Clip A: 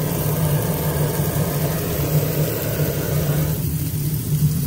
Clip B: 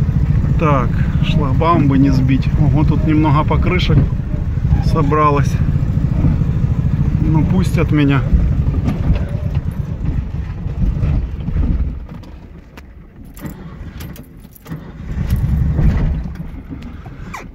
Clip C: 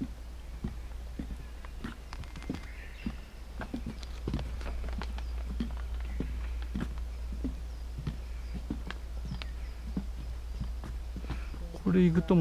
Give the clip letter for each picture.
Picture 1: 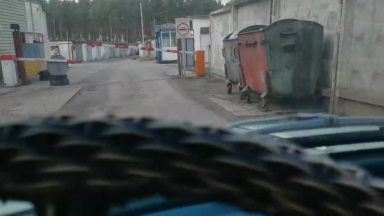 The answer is B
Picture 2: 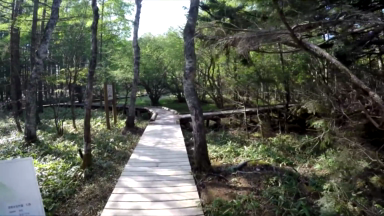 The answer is C